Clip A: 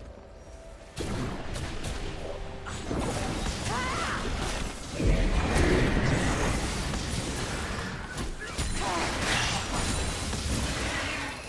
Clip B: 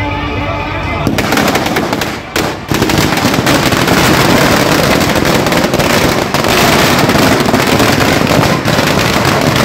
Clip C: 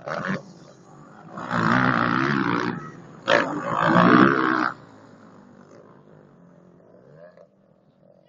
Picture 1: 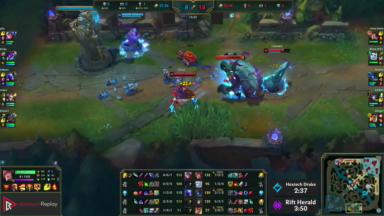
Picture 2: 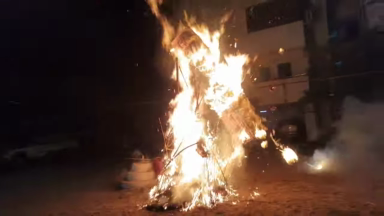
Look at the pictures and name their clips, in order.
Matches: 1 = A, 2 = B